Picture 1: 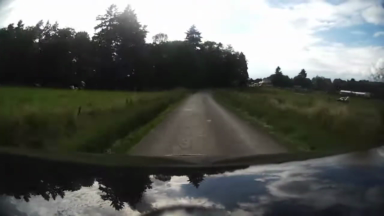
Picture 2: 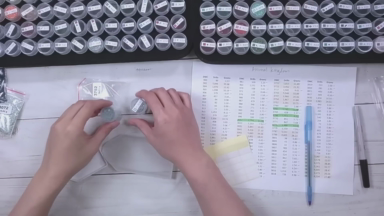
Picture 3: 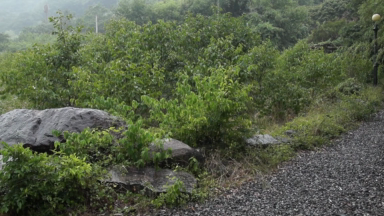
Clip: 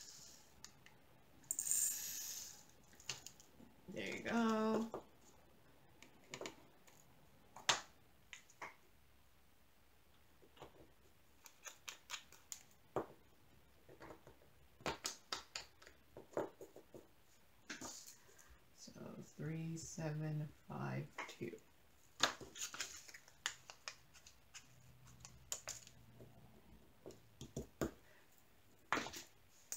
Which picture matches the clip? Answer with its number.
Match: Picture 2